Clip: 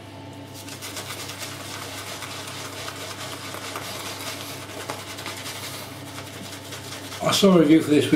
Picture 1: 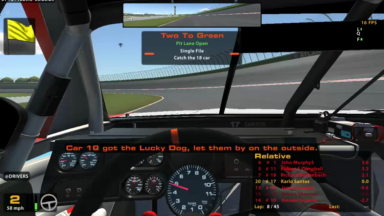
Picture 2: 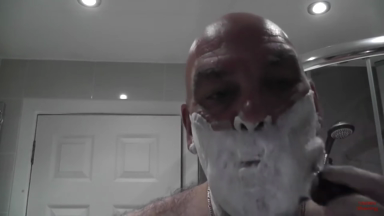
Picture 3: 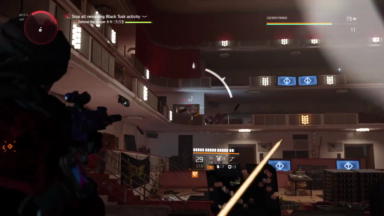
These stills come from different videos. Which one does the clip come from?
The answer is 2